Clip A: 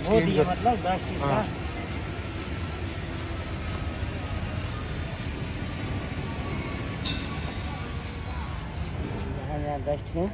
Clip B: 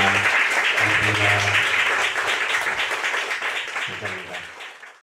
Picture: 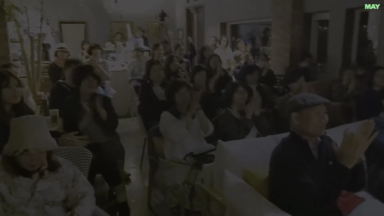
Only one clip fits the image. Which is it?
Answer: B